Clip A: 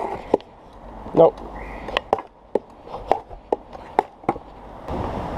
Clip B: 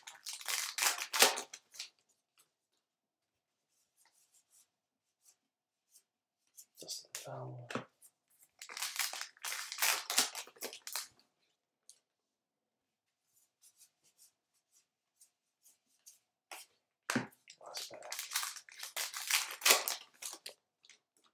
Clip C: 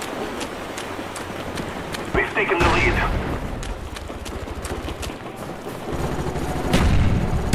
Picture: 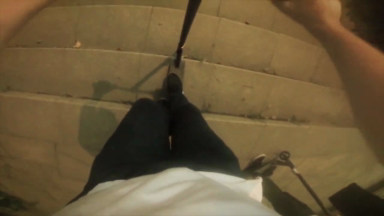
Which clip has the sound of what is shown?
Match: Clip A